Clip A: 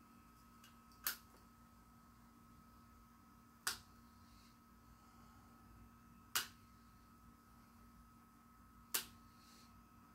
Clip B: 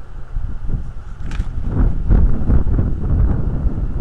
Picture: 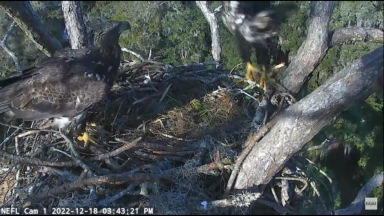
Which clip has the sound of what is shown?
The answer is B